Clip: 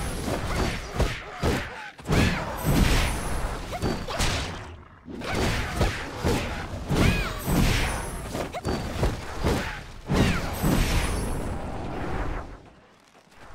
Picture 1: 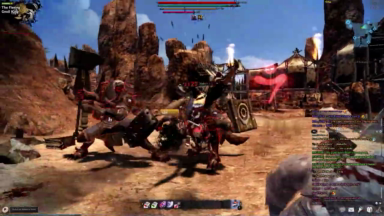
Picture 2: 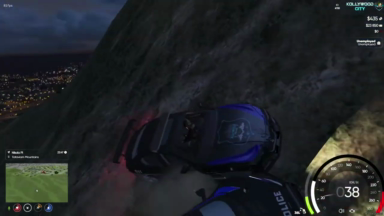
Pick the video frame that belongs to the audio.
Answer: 1